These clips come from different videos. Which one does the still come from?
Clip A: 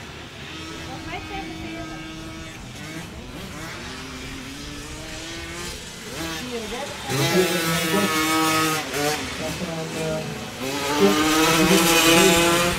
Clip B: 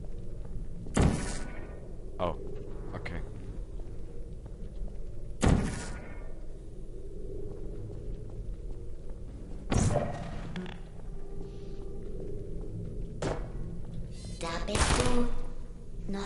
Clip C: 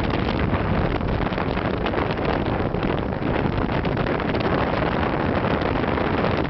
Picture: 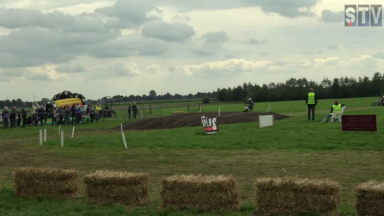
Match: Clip A